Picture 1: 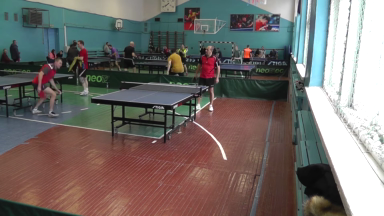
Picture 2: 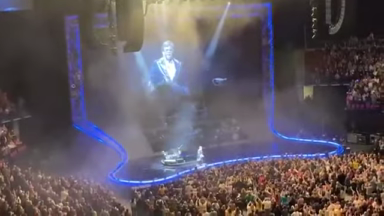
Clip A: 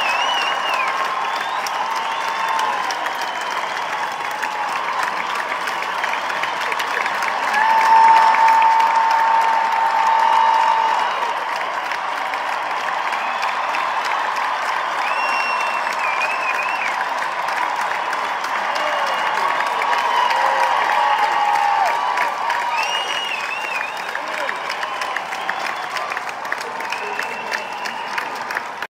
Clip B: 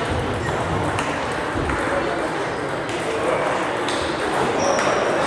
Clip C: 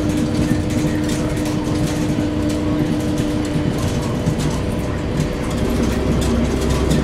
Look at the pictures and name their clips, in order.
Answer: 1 B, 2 A